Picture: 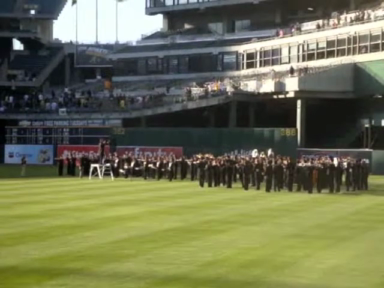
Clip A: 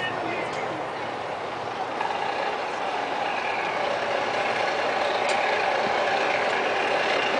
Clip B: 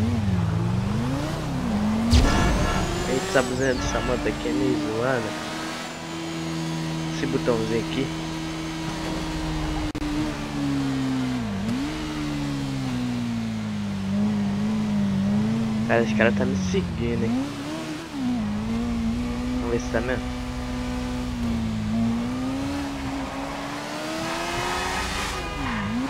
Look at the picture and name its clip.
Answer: A